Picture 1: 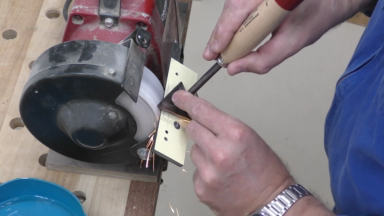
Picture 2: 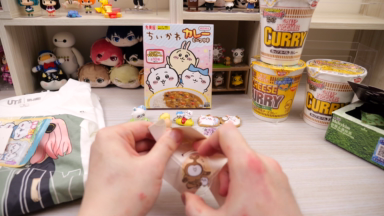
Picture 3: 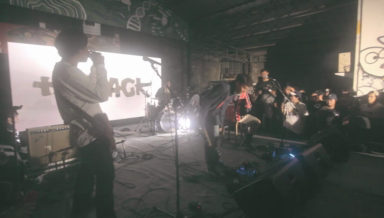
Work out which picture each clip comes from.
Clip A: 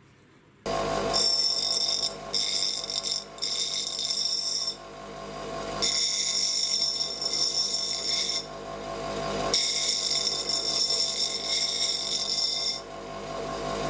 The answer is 1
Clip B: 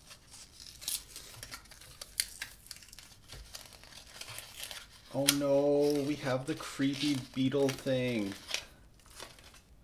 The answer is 2